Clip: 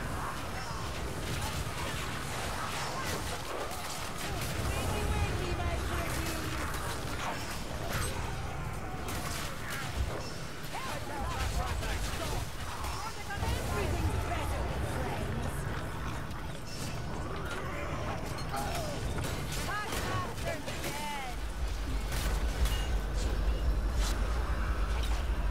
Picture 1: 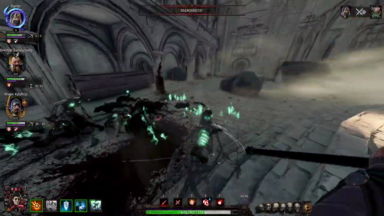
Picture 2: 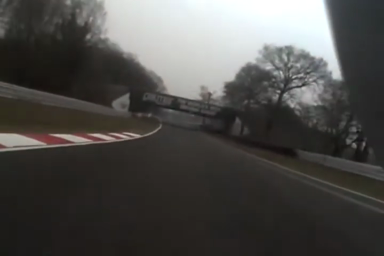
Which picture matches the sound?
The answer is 1